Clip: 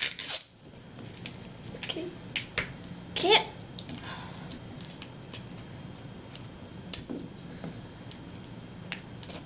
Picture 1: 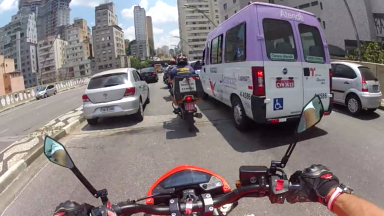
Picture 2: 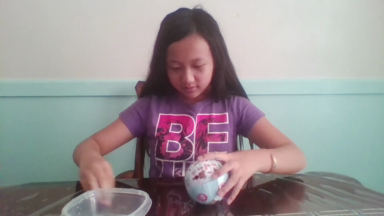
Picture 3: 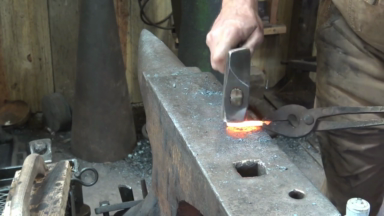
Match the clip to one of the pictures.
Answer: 2